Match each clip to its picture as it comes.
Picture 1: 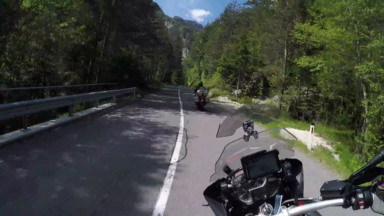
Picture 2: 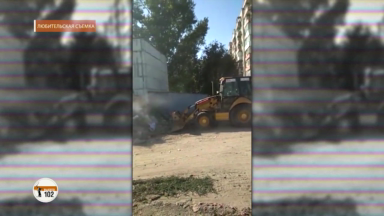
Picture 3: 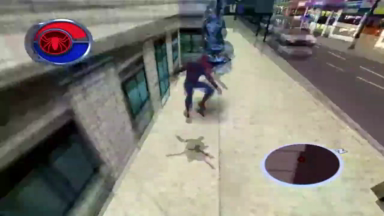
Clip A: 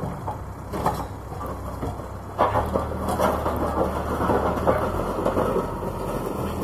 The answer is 2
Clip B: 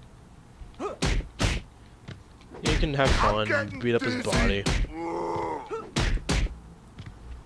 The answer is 3